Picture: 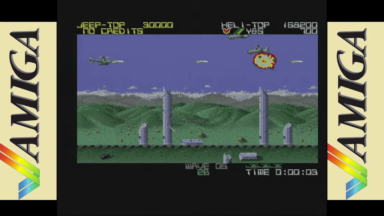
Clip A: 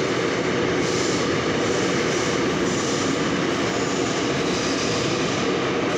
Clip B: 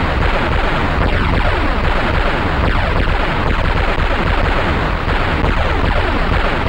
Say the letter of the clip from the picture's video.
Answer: B